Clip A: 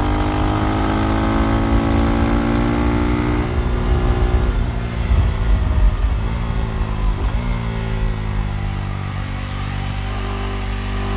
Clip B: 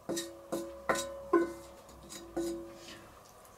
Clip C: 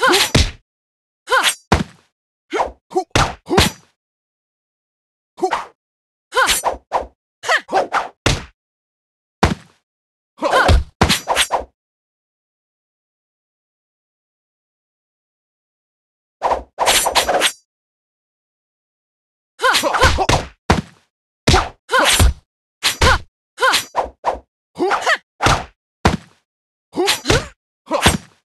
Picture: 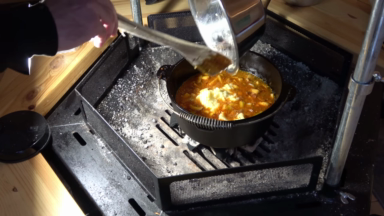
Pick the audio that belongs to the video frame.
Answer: B